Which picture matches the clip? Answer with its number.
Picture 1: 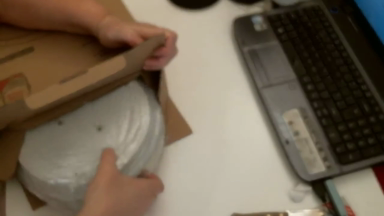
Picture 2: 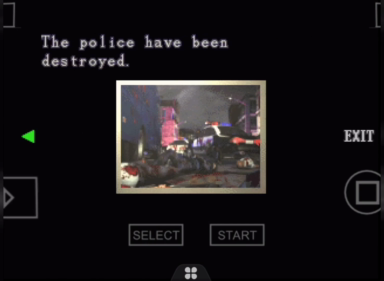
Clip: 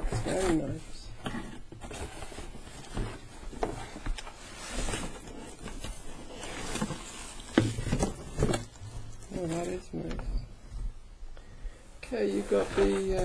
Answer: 1